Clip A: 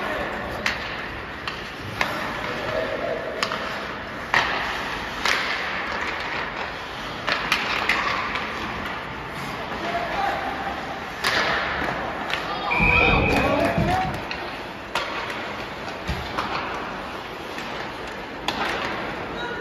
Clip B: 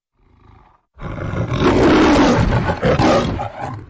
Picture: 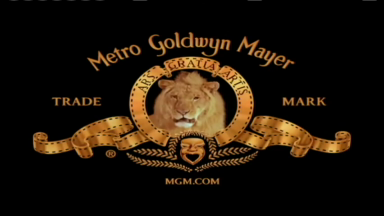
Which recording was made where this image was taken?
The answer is B